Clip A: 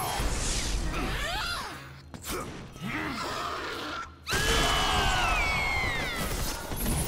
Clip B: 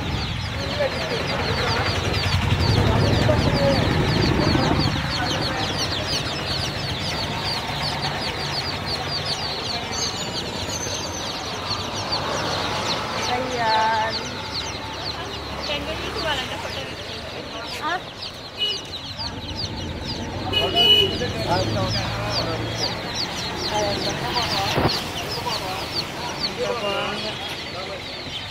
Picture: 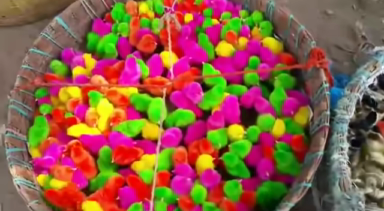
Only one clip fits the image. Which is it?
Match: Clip B